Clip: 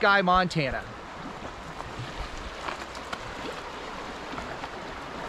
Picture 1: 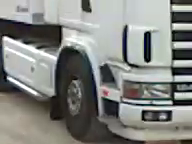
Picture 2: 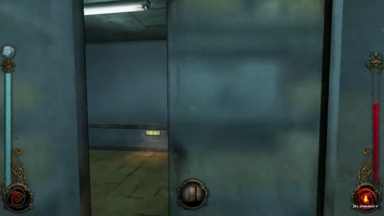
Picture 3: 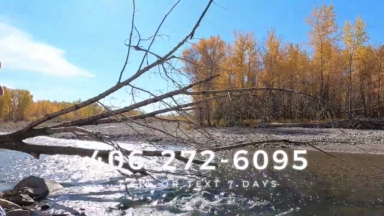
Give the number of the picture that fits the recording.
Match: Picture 3